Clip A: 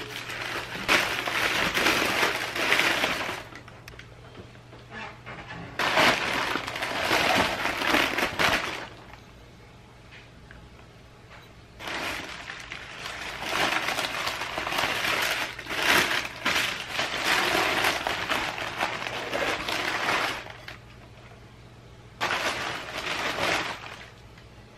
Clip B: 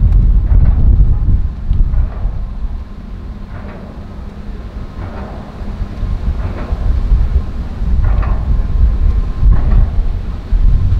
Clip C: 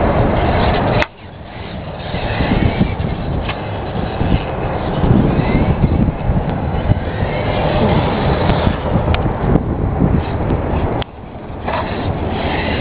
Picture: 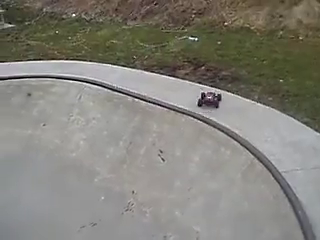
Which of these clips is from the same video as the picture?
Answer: C